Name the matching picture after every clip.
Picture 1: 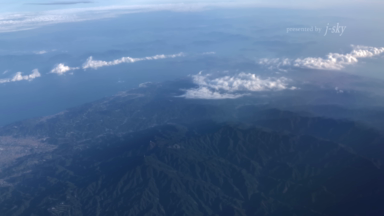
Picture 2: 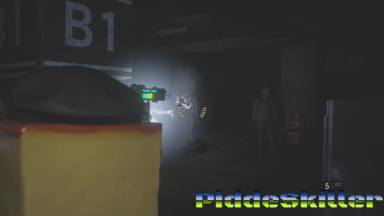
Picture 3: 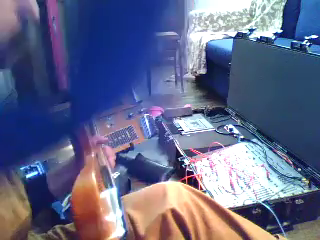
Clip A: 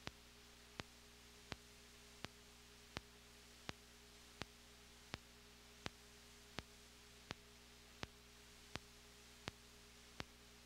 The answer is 3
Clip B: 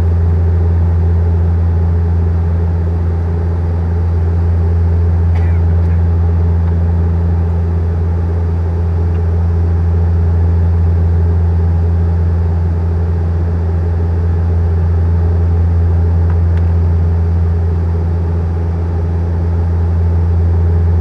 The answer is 1